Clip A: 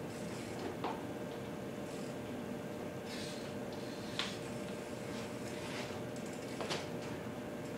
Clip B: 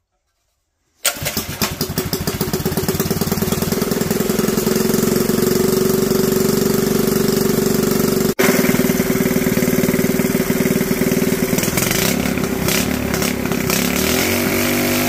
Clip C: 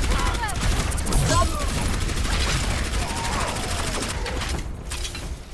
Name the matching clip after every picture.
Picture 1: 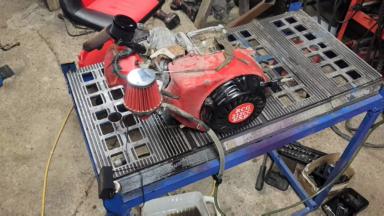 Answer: B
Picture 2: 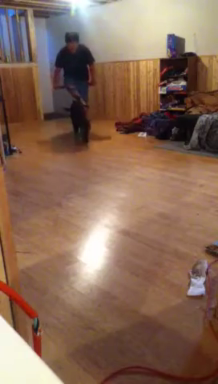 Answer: A